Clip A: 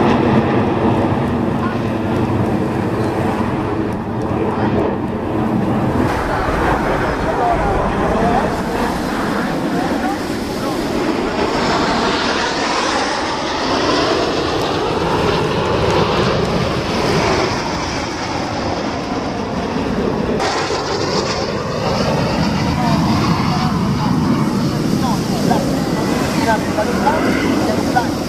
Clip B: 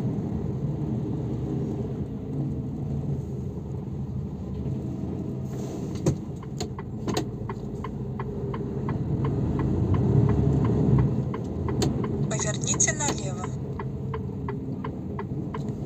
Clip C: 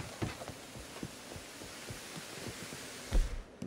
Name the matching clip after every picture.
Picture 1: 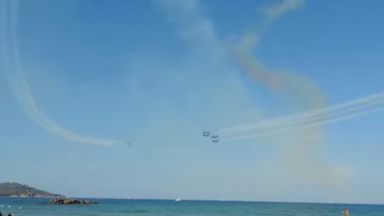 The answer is A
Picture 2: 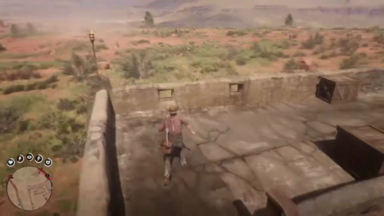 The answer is C